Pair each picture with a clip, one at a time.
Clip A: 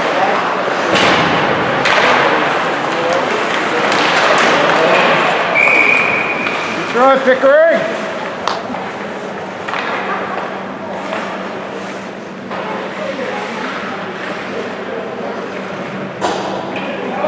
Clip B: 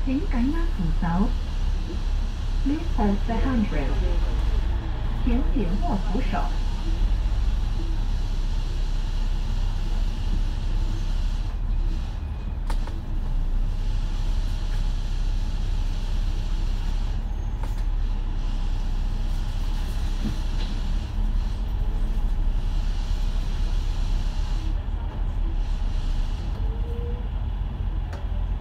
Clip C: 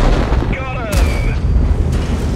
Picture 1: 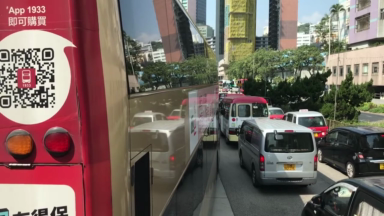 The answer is B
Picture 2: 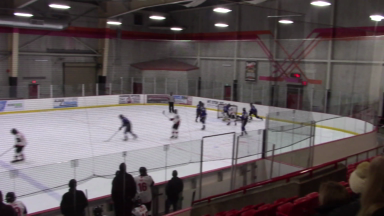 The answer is A